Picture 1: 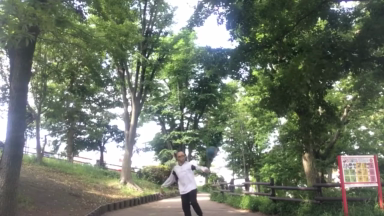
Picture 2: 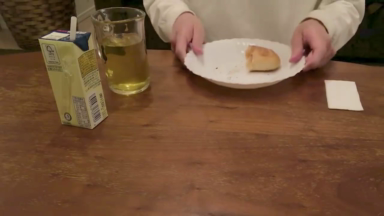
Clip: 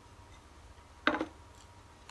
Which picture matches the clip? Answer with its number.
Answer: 2